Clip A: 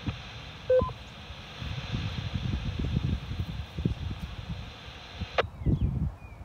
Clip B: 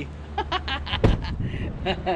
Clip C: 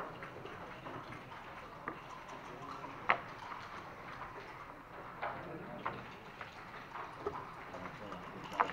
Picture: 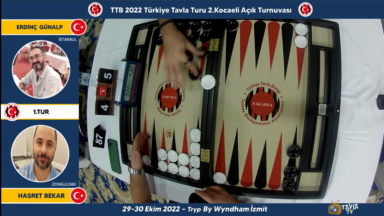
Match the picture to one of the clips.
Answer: C